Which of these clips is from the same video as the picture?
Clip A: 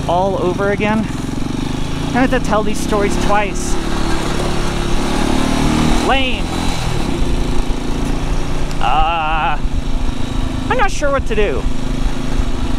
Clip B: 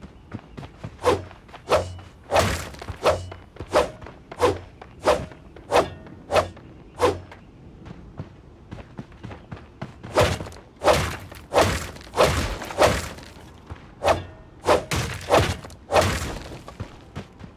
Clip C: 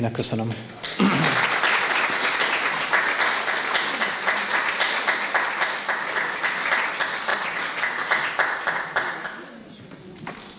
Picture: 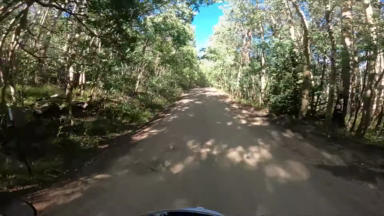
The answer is A